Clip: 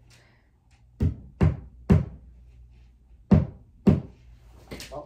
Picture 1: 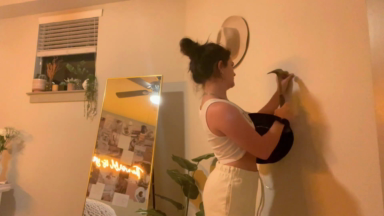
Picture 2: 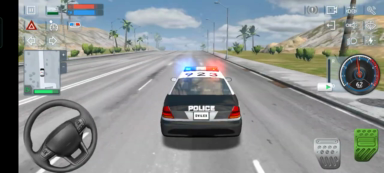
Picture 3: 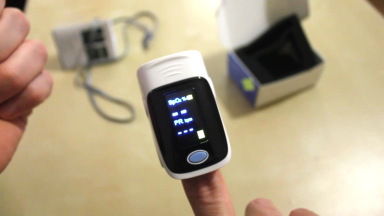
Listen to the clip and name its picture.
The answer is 1